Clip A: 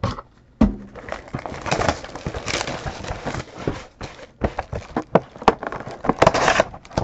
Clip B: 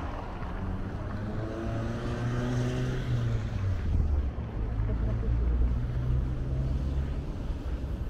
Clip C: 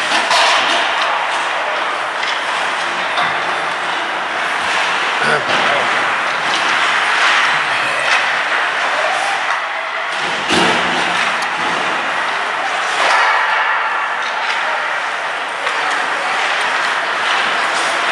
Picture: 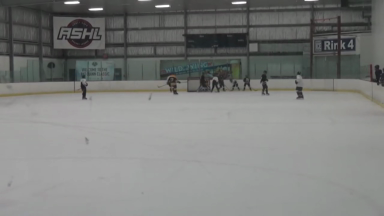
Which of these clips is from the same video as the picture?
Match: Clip C